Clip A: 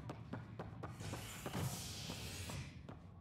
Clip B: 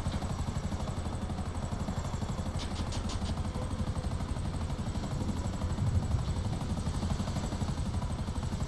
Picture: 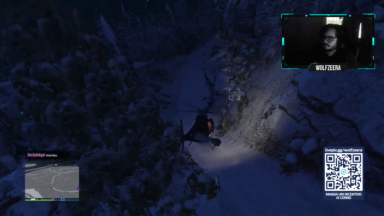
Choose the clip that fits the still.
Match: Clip B